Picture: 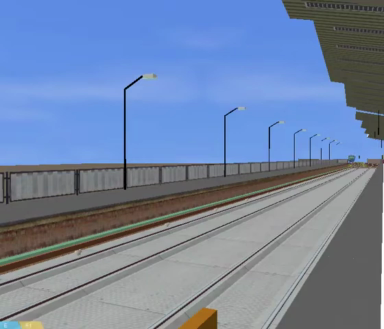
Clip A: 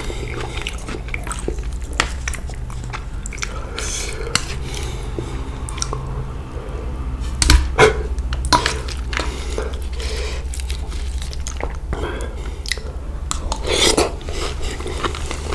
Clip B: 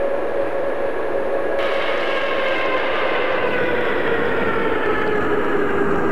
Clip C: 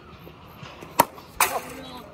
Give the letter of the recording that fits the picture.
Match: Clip B